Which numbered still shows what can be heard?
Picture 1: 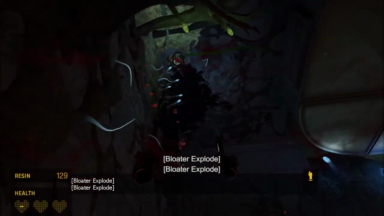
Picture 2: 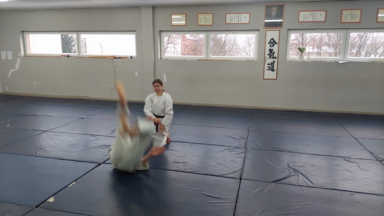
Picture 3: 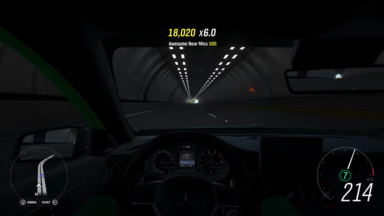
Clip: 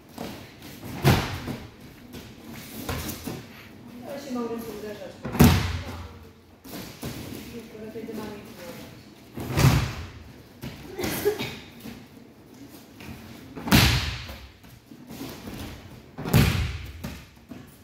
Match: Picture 2